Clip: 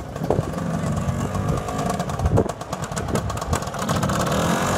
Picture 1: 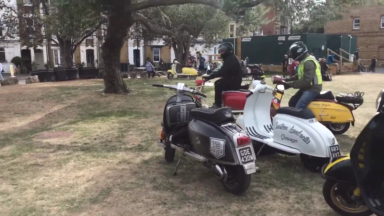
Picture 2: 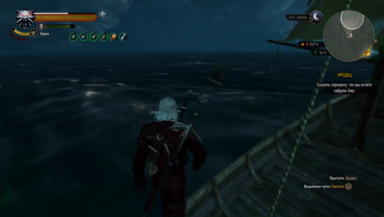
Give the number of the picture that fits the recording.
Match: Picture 1